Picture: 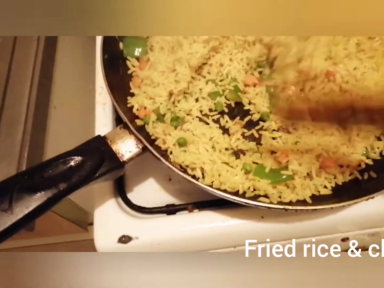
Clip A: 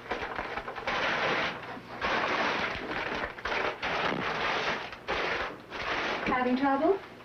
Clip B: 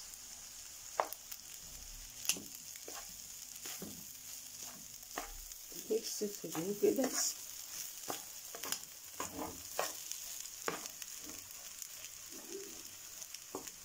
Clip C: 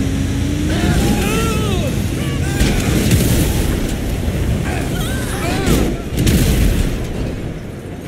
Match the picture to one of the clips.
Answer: B